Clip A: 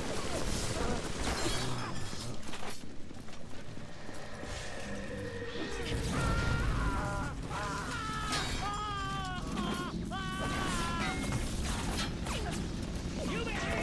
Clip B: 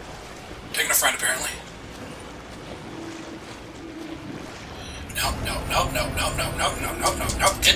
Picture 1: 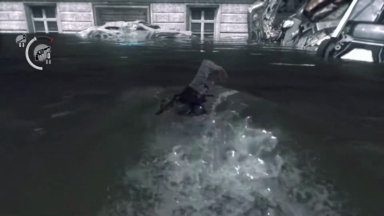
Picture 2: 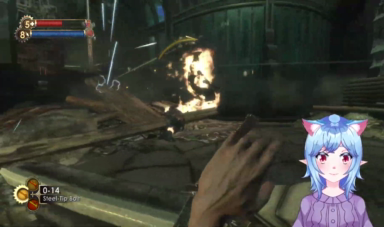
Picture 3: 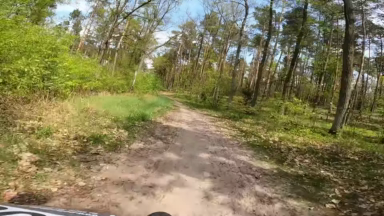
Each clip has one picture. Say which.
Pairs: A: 2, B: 1